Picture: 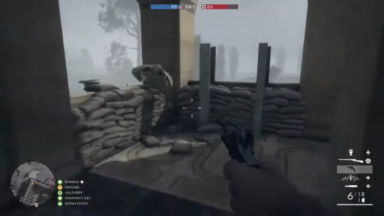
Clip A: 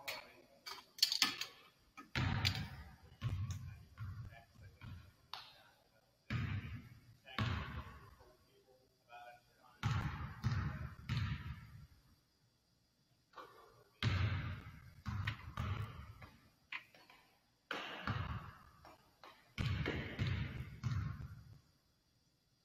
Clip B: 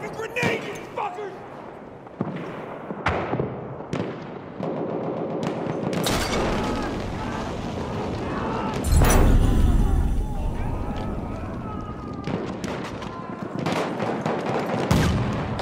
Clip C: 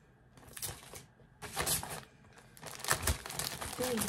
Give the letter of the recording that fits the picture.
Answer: B